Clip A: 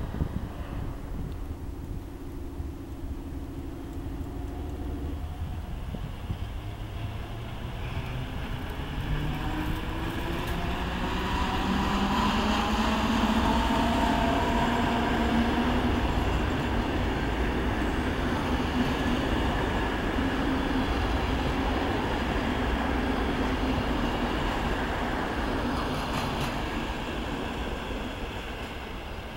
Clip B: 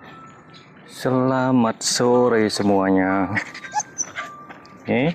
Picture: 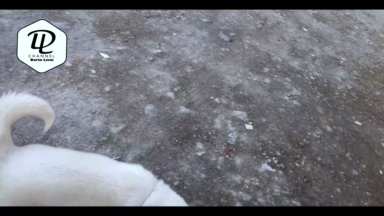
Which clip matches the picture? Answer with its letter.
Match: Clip B